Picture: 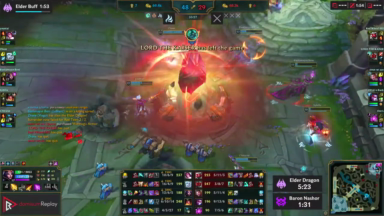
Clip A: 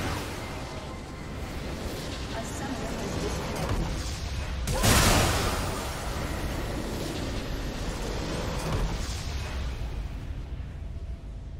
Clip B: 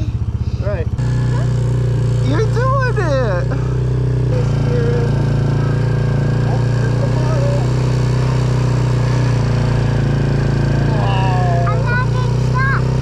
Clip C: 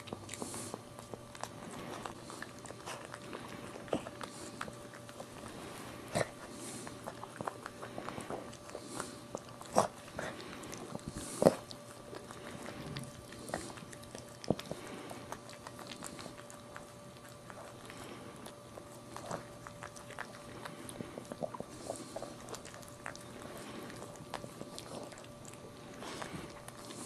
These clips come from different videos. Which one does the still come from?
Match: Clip A